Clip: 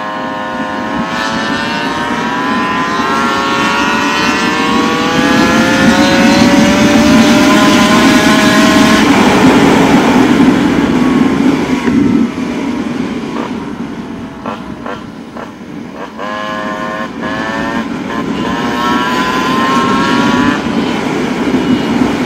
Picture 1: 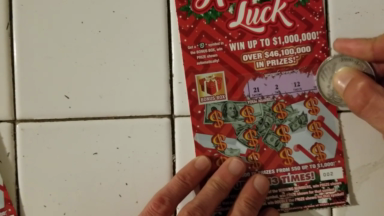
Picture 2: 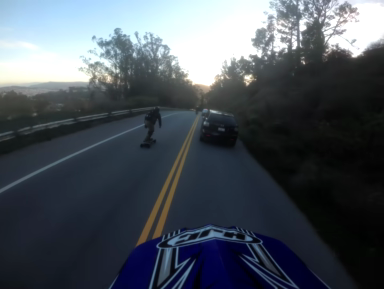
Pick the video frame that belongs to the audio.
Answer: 2